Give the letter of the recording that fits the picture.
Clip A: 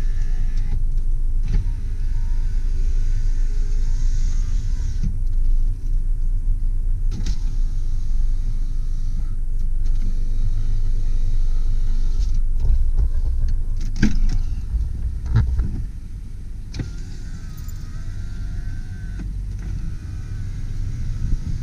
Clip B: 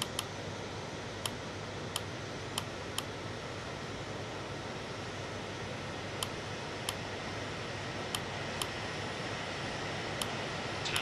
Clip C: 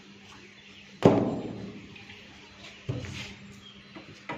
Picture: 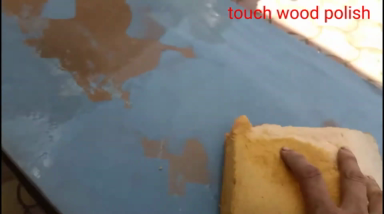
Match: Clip C